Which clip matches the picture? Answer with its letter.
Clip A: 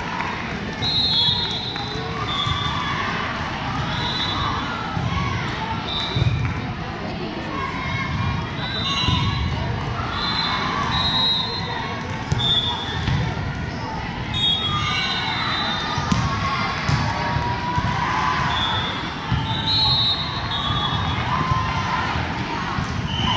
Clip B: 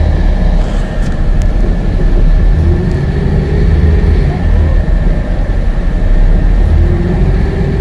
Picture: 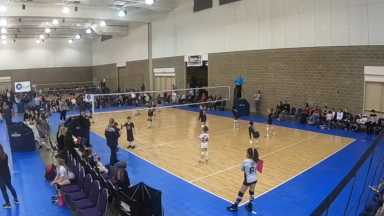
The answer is A